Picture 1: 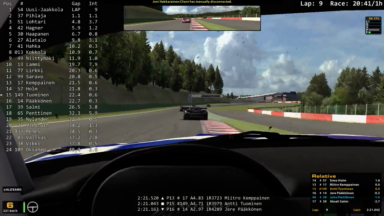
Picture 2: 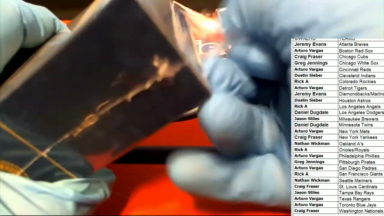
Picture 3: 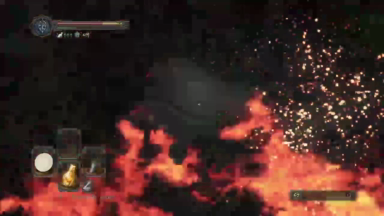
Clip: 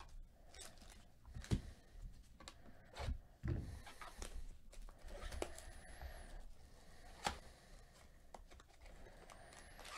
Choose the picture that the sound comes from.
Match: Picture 2